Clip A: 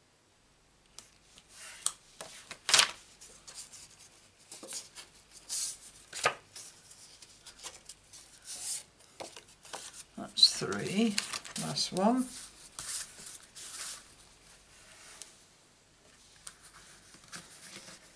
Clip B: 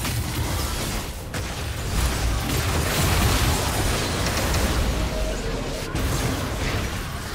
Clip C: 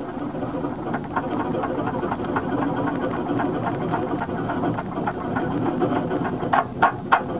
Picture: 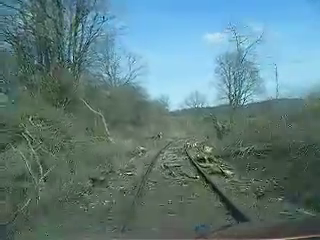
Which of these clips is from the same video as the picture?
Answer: C